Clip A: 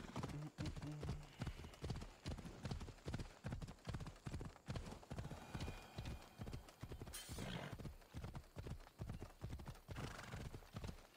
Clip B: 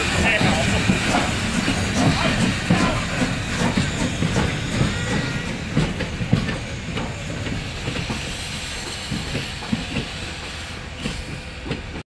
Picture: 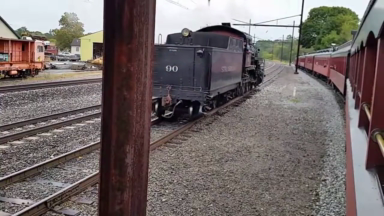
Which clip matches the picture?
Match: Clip B